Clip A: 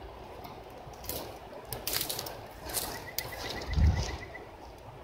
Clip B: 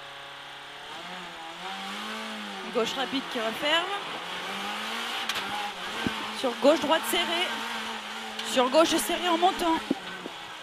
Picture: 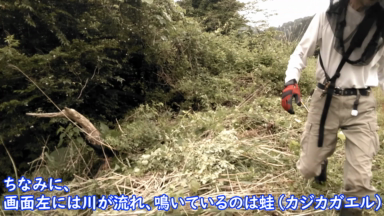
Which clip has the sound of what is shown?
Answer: A